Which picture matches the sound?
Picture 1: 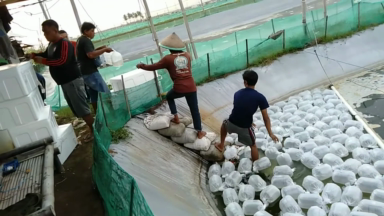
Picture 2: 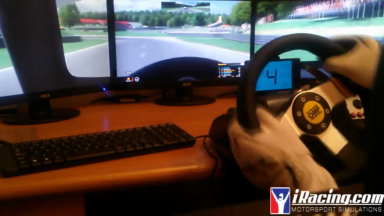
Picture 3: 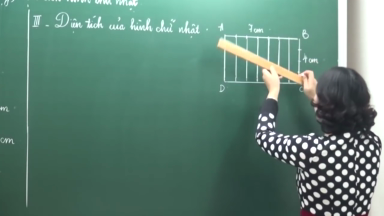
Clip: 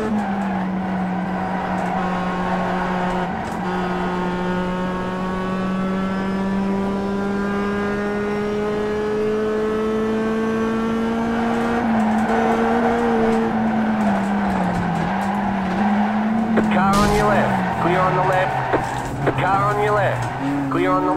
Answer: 2